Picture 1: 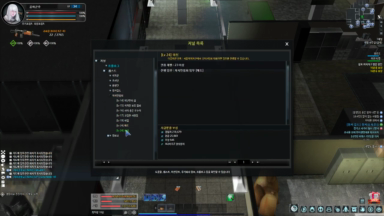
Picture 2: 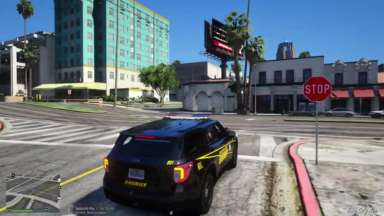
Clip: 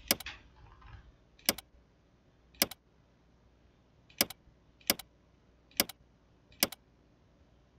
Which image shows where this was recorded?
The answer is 1